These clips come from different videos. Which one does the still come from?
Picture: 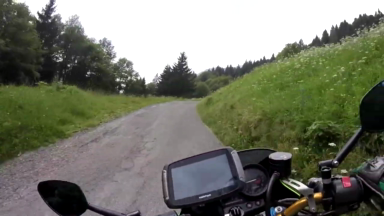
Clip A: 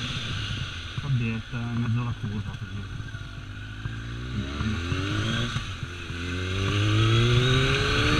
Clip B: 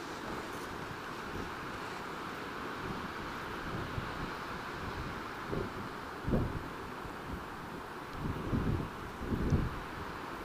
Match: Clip A